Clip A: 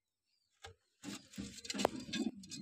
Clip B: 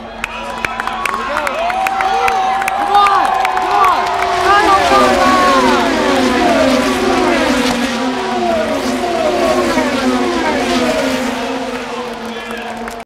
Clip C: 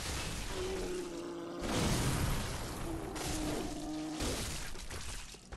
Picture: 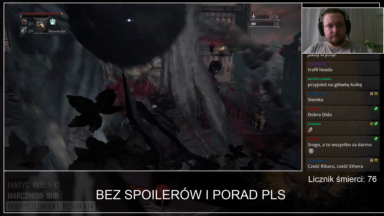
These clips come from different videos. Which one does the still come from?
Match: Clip C